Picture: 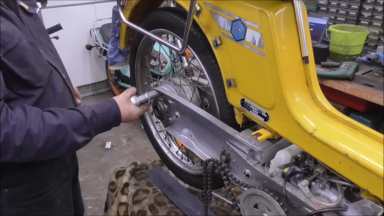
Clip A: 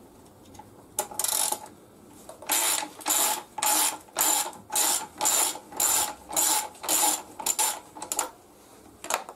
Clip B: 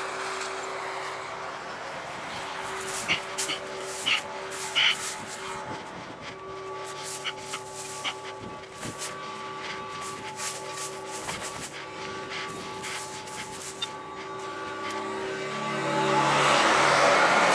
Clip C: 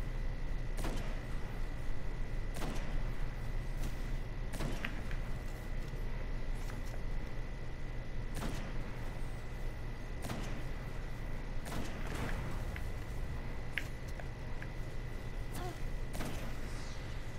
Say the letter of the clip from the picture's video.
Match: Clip A